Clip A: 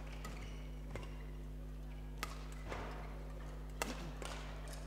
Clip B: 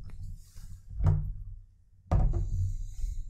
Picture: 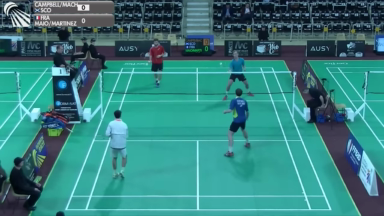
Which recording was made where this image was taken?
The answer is A